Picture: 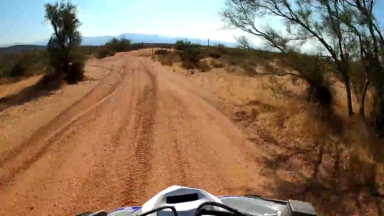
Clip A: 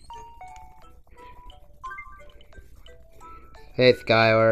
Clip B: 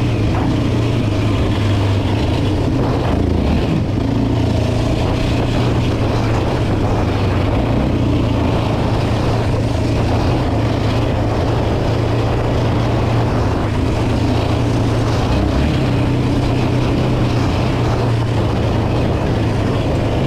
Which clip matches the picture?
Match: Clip B